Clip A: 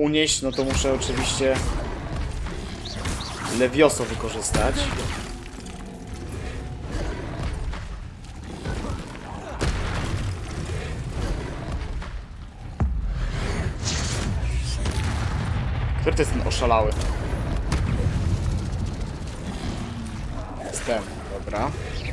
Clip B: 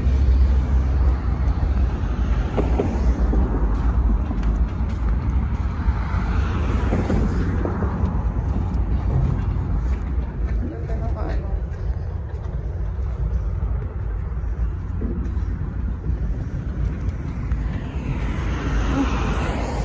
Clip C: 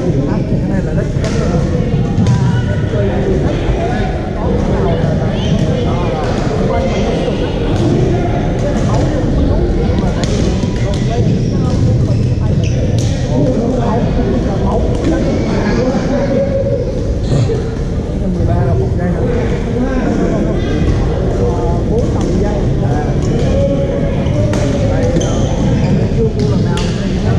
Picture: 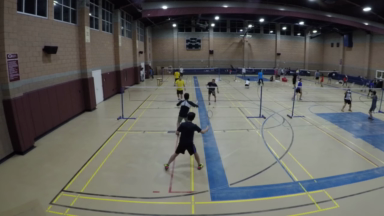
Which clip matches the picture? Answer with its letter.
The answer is C